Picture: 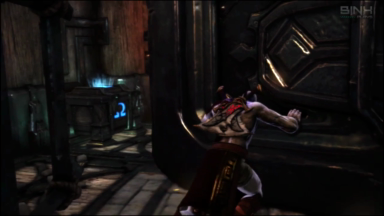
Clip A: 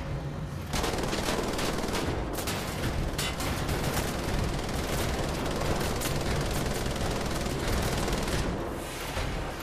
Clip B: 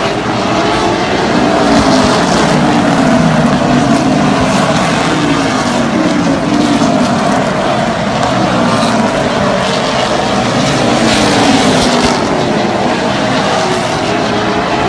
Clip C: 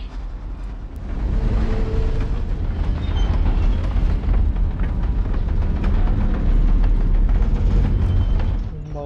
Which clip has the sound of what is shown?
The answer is C